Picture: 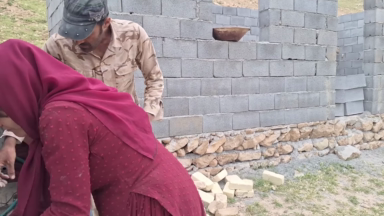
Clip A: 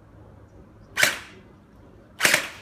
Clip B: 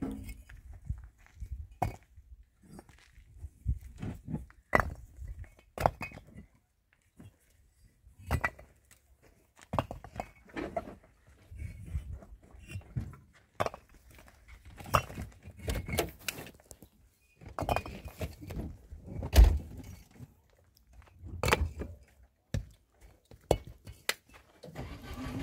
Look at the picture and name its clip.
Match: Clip B